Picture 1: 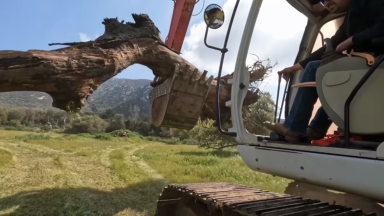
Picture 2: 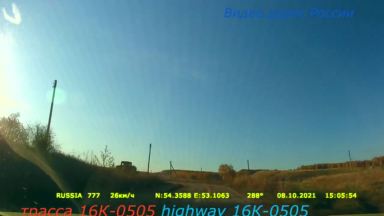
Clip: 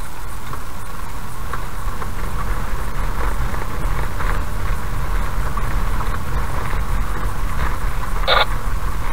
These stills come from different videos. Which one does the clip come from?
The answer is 2